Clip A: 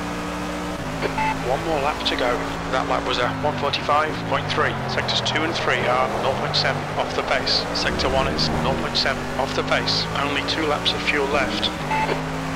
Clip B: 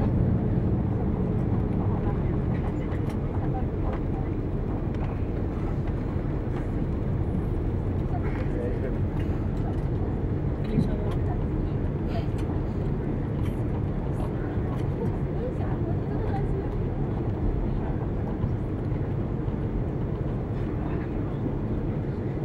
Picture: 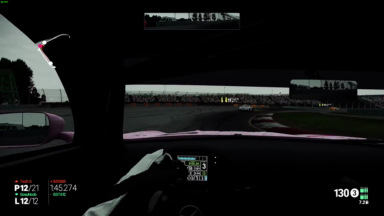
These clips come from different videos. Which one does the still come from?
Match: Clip A